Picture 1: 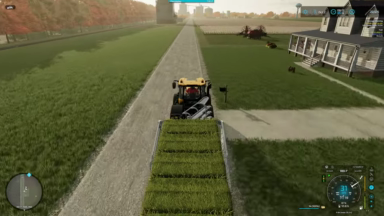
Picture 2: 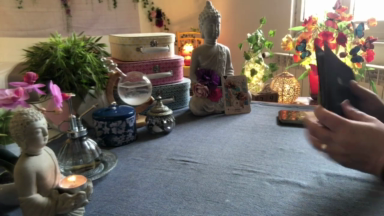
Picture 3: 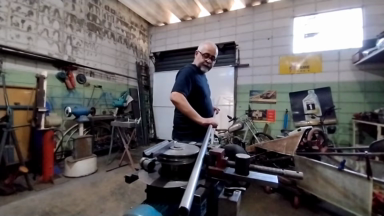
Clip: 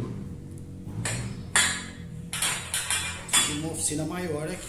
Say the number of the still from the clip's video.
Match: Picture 3